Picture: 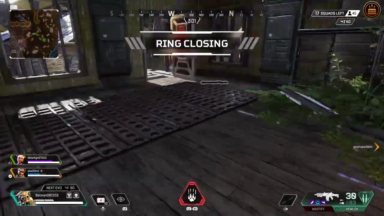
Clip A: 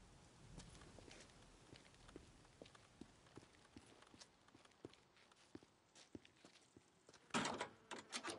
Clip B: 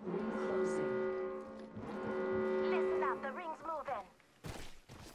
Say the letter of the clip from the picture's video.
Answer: B